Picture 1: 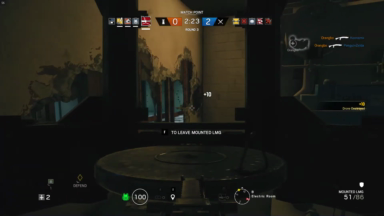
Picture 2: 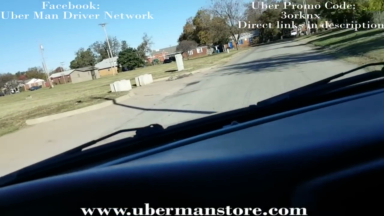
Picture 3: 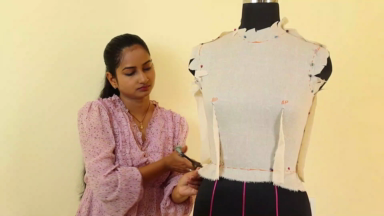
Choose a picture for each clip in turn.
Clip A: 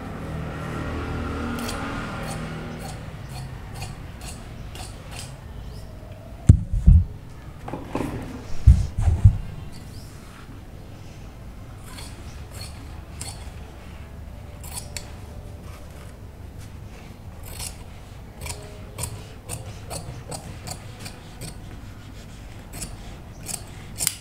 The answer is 3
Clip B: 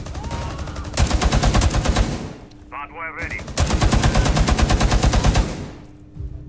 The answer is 1